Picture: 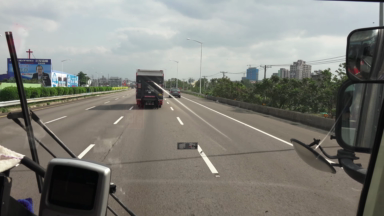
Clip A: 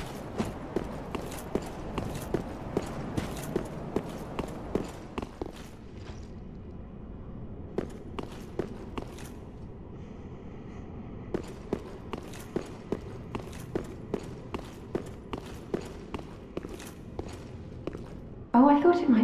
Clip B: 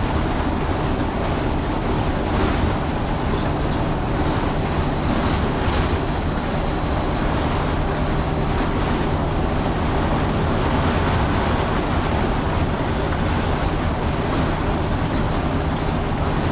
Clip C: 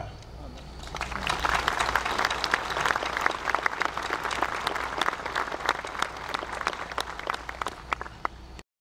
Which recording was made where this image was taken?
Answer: B